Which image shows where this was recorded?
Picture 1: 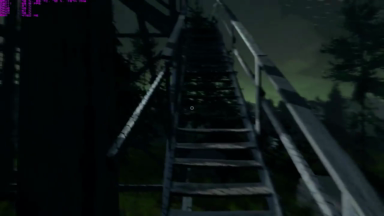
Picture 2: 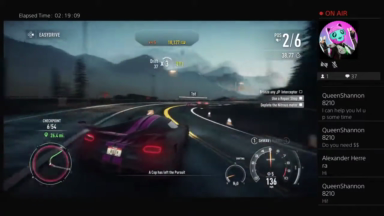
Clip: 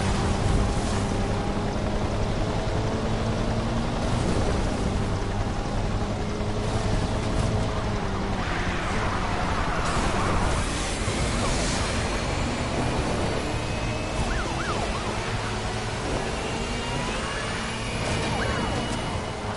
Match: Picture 2